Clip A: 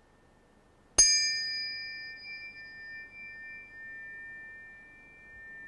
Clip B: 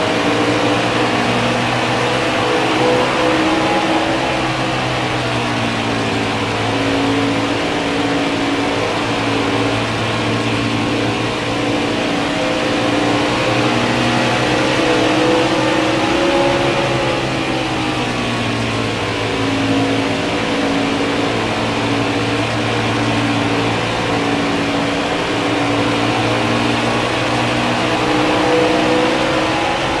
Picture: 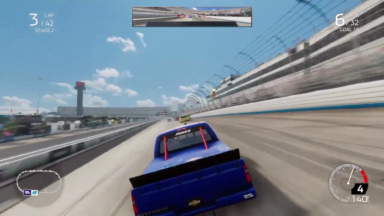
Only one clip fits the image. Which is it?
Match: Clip B